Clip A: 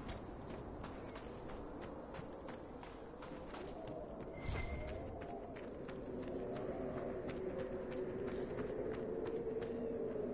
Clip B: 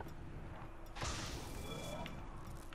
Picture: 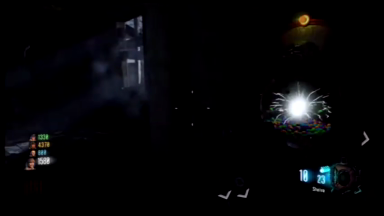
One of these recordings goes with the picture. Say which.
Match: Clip B